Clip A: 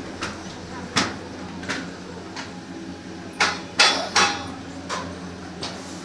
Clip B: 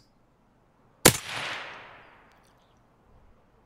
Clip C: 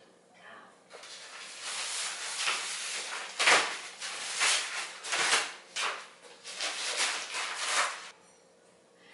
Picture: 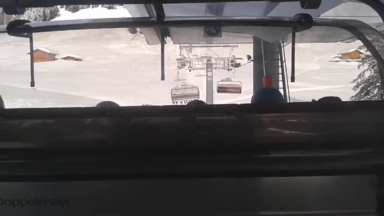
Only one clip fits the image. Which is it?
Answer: A